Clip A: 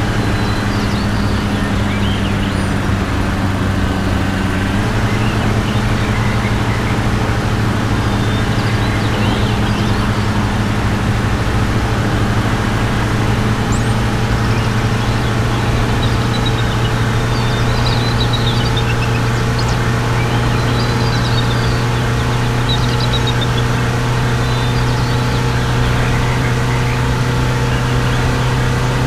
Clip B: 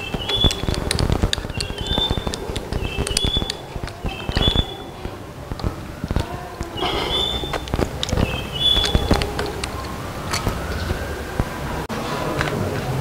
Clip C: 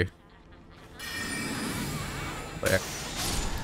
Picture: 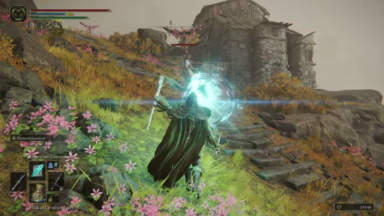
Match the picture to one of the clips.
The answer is C